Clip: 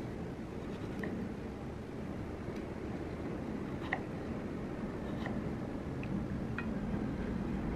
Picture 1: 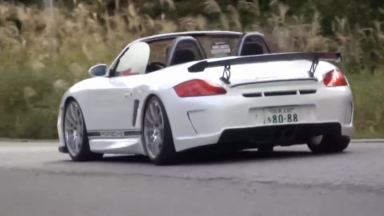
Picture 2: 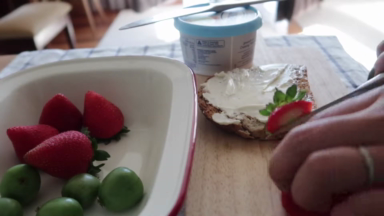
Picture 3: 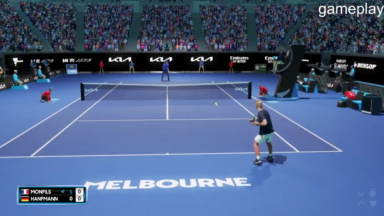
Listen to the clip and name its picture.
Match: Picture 2